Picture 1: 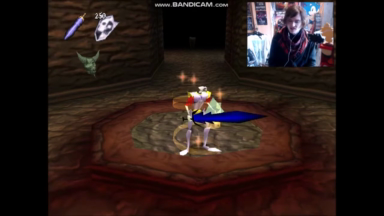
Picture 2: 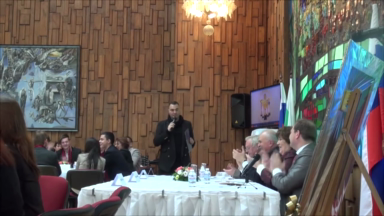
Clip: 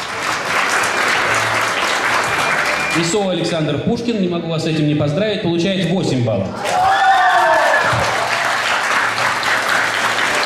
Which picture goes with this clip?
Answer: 2